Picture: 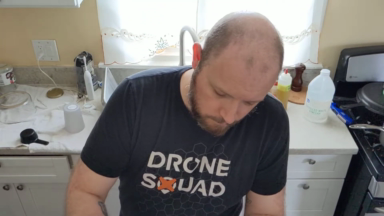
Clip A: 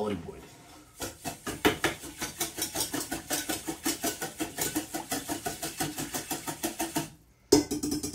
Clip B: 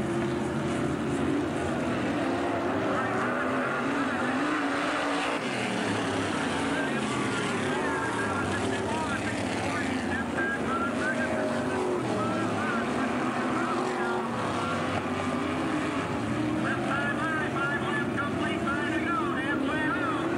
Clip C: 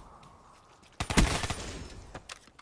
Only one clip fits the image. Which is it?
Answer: A